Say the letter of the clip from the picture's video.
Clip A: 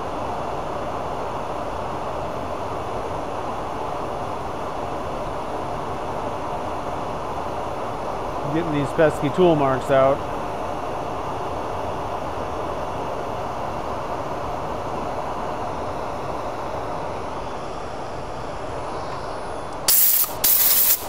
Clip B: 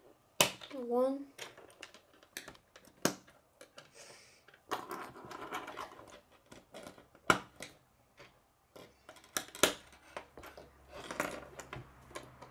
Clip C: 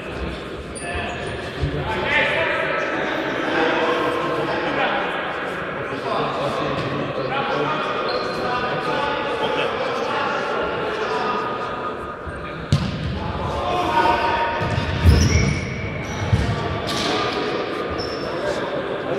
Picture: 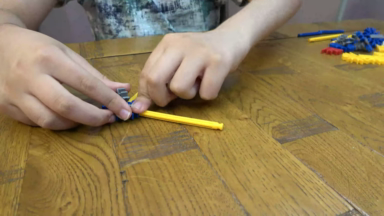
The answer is B